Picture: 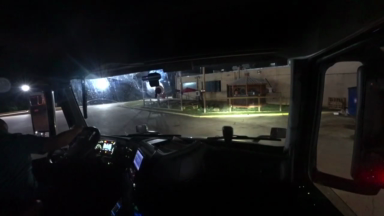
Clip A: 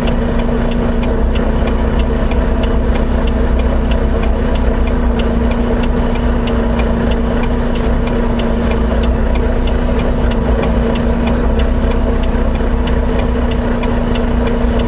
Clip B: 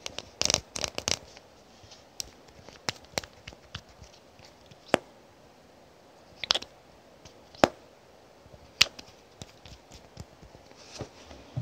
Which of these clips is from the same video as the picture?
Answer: A